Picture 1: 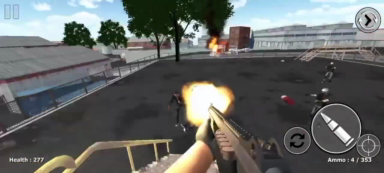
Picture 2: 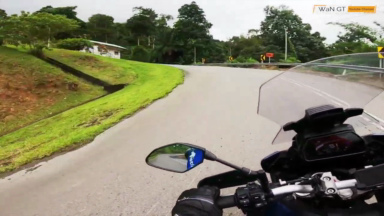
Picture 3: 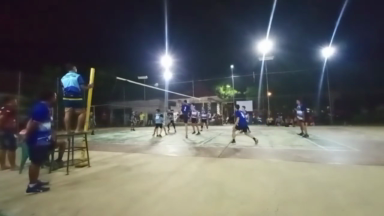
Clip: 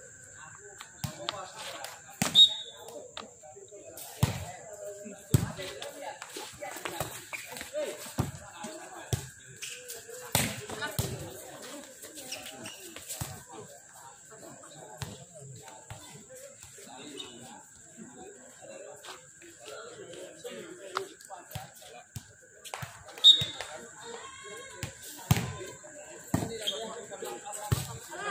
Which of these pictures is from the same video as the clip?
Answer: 3